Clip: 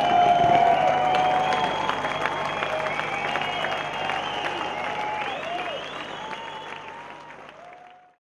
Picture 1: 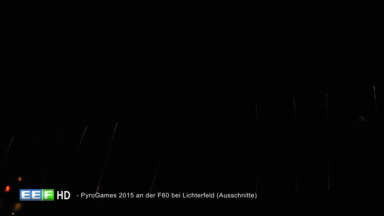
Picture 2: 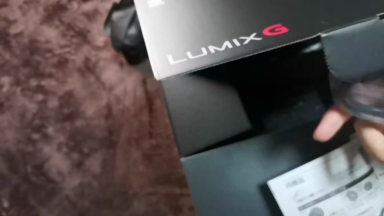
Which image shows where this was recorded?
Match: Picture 1